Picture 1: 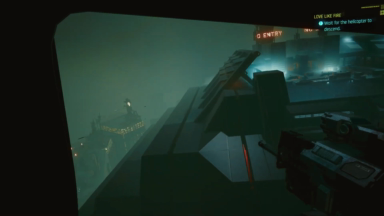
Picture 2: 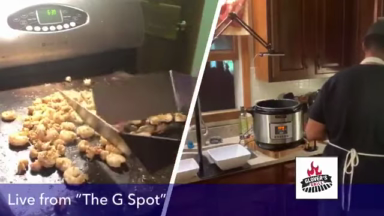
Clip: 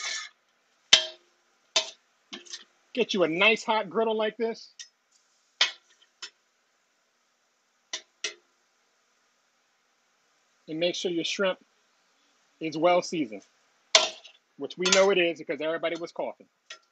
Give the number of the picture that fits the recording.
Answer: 2